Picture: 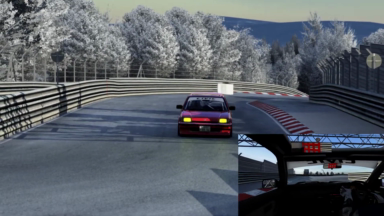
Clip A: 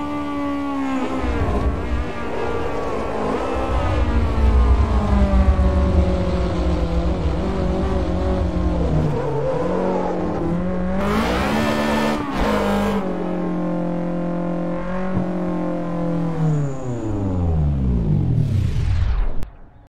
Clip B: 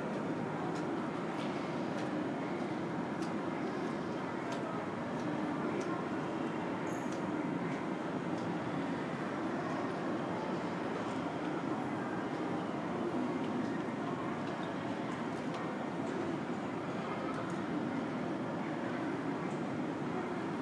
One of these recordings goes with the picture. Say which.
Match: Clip A